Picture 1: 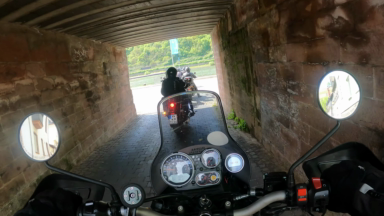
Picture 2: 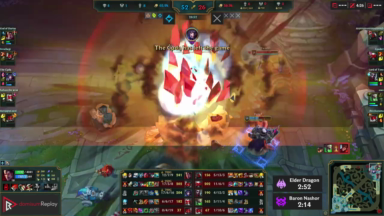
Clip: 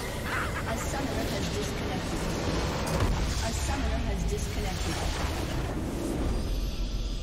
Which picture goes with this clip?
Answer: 2